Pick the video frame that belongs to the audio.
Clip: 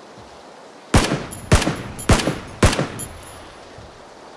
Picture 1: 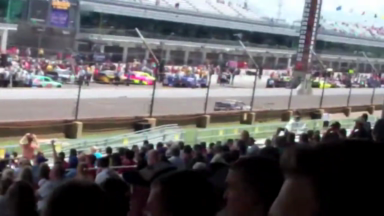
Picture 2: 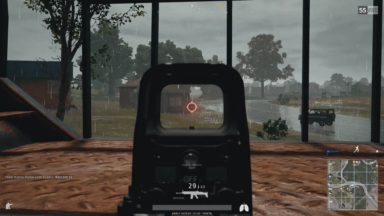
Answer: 2